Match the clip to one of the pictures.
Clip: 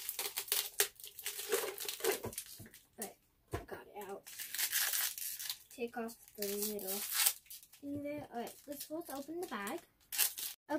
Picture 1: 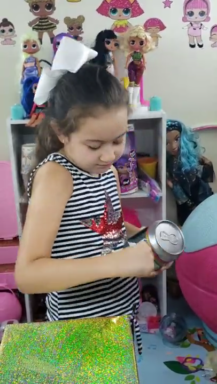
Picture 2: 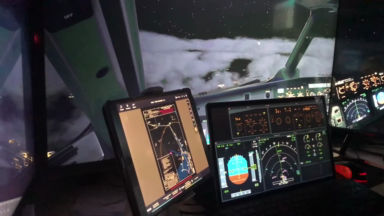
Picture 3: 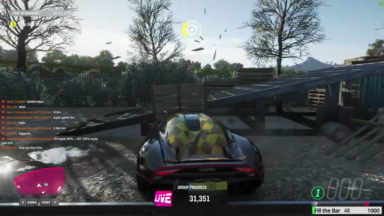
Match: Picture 1